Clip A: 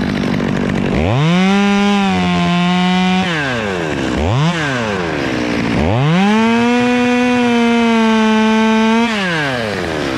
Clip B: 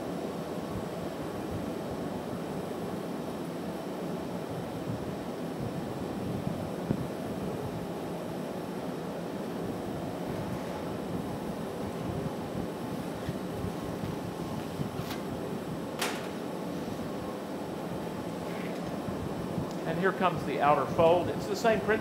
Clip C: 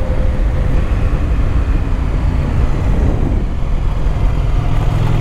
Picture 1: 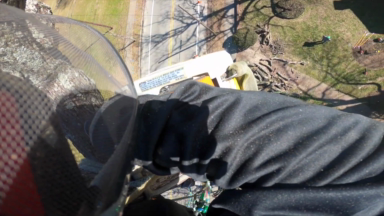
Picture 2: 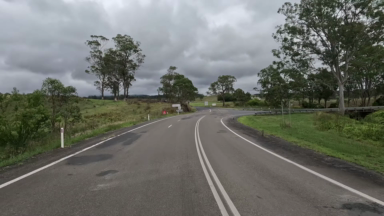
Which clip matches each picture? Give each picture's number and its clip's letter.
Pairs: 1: A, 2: C